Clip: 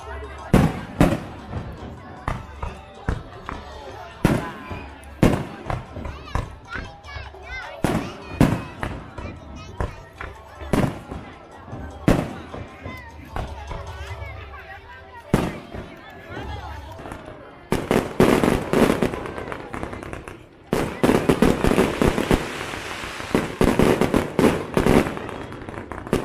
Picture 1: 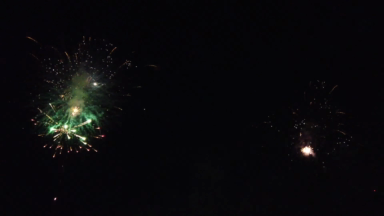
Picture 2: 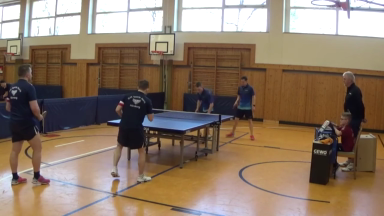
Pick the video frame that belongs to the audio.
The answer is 1